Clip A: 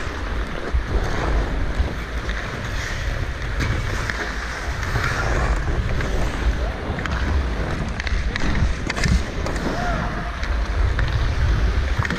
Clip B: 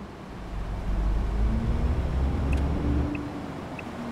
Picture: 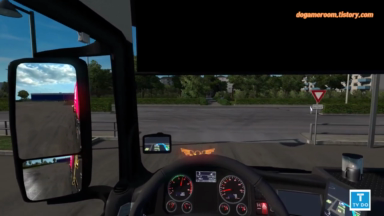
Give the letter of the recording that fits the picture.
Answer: B